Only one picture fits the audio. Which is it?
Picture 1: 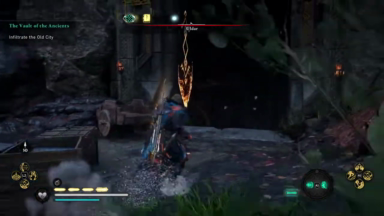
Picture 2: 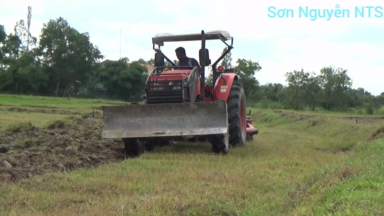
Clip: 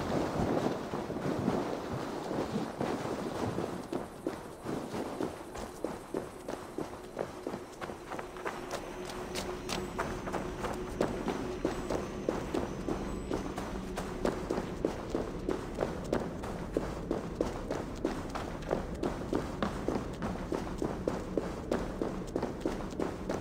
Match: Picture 1